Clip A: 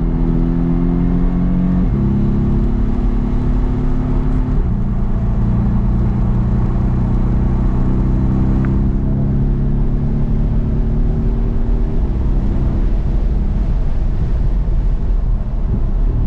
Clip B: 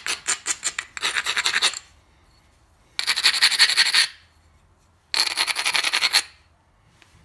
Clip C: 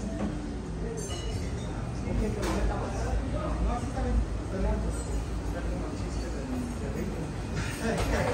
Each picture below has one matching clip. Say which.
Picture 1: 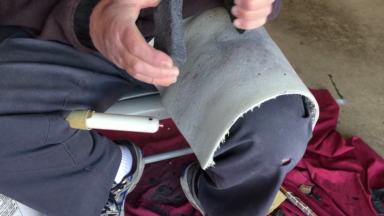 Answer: B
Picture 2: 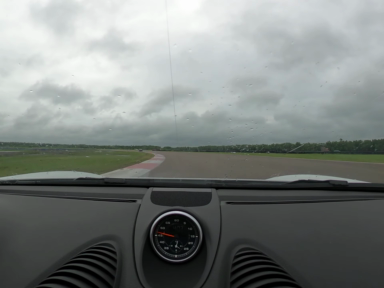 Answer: A